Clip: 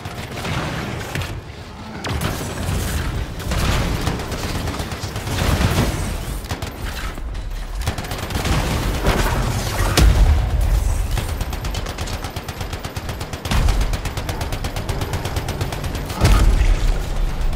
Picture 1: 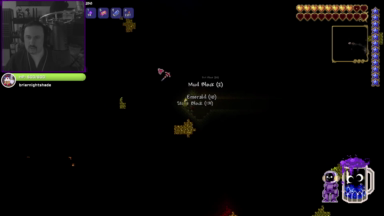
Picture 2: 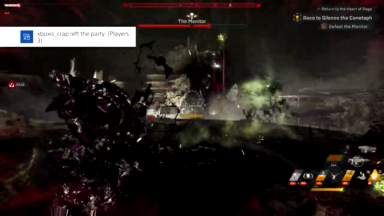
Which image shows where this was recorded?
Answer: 2